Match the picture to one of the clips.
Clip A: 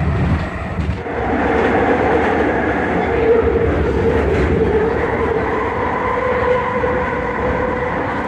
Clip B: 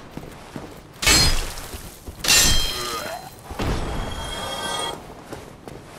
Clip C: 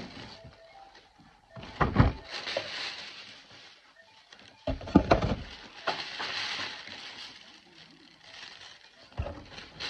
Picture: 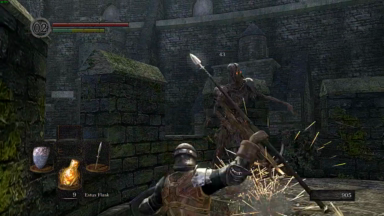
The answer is B